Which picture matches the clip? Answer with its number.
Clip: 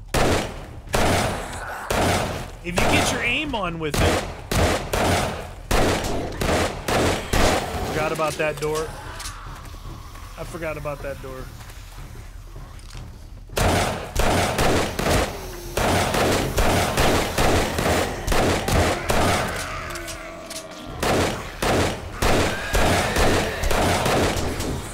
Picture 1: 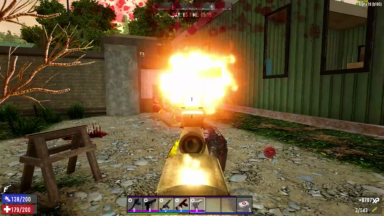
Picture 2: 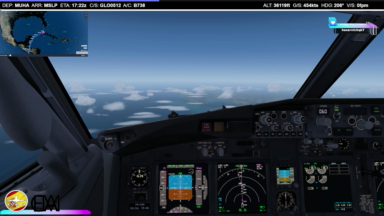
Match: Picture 1